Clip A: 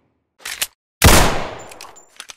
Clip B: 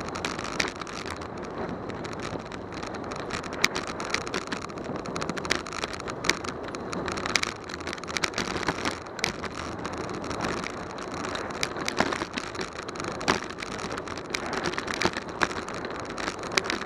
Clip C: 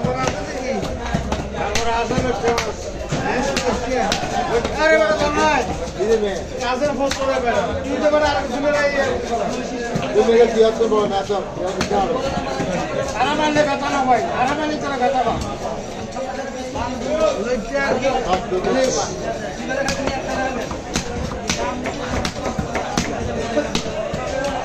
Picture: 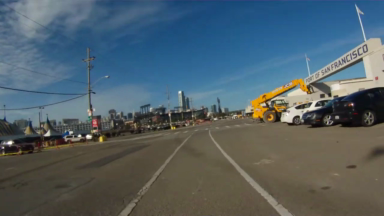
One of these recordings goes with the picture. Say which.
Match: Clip B